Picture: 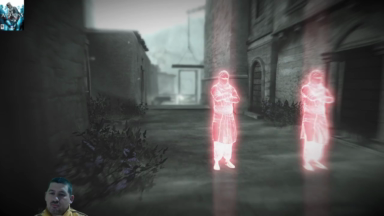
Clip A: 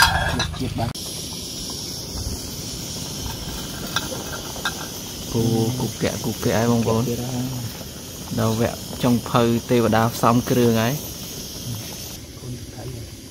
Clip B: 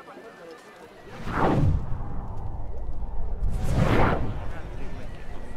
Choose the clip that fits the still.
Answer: B